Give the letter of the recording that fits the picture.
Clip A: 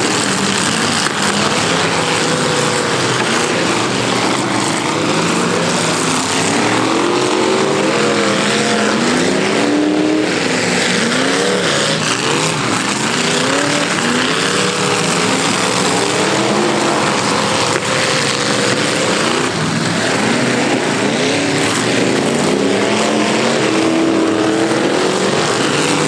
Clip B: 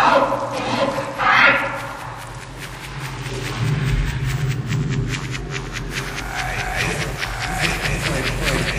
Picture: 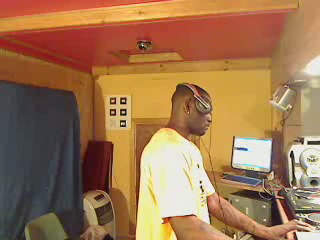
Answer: B